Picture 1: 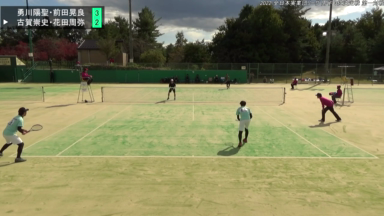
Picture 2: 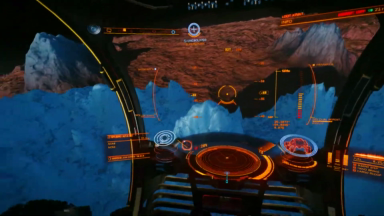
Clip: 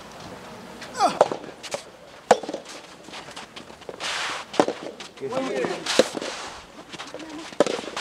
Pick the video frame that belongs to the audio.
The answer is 1